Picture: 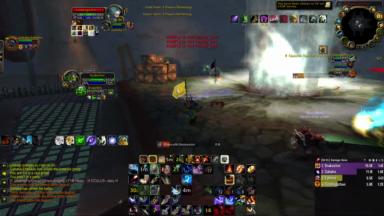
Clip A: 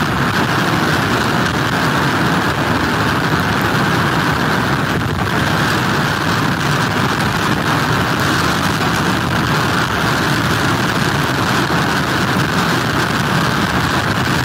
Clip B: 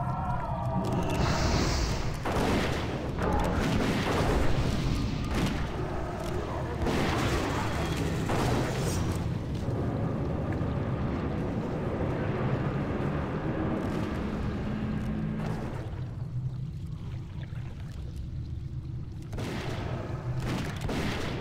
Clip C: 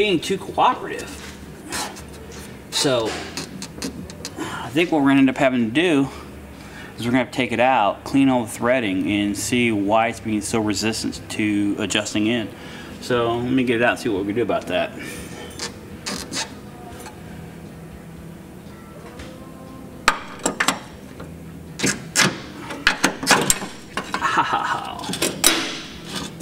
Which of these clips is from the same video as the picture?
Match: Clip B